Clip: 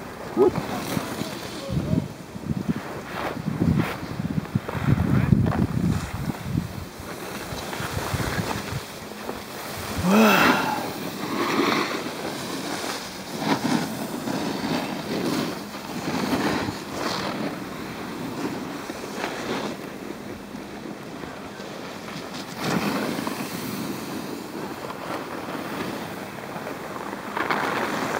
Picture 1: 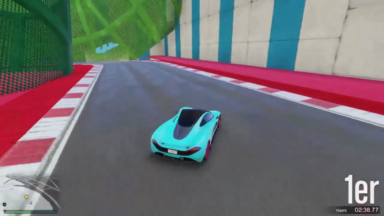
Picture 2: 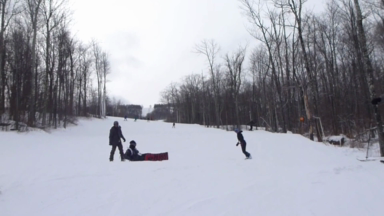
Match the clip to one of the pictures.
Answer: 2